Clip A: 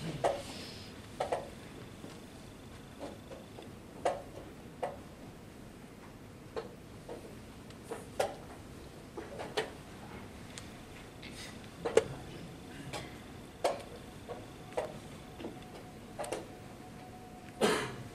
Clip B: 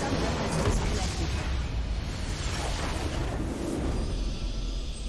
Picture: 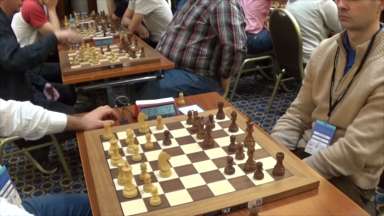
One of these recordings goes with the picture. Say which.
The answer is A